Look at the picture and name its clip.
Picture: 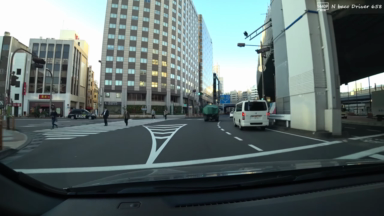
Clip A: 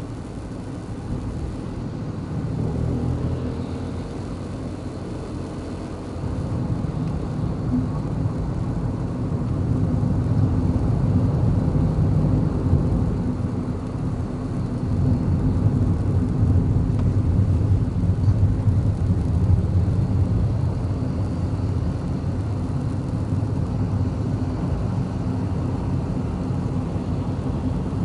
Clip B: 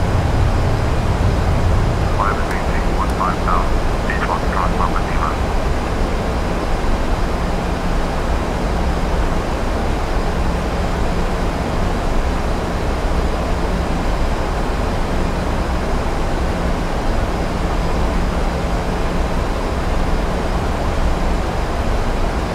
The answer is A